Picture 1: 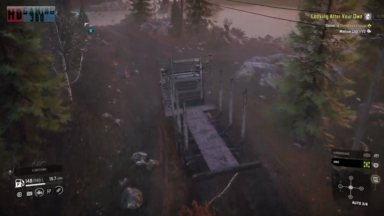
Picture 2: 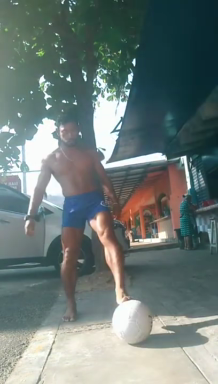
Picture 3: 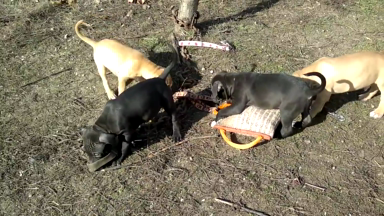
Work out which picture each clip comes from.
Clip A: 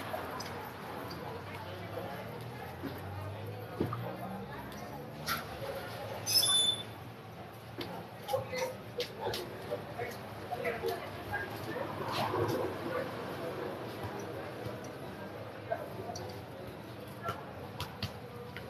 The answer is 2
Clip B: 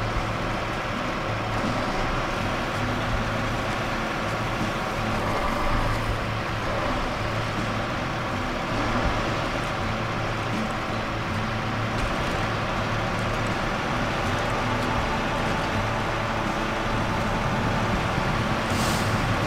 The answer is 1